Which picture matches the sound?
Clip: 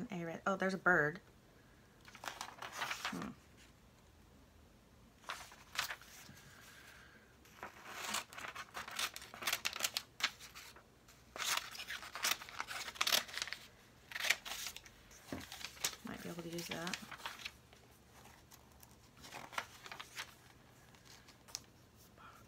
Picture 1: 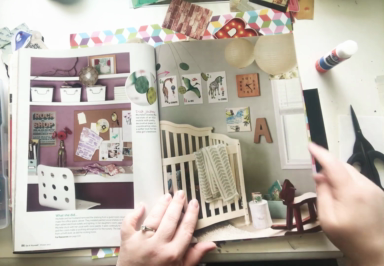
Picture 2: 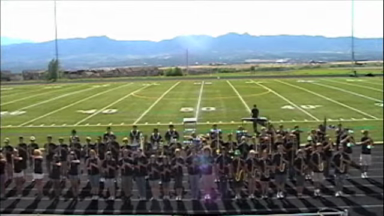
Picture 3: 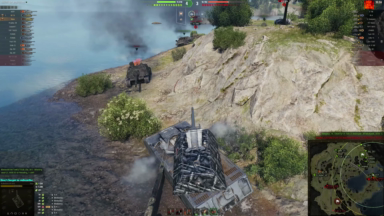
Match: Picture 1